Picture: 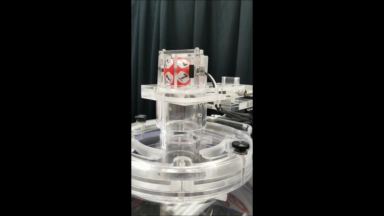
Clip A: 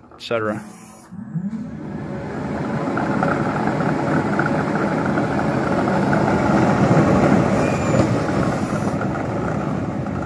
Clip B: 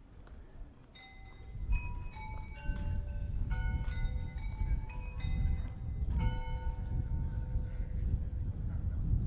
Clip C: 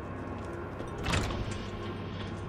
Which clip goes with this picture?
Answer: A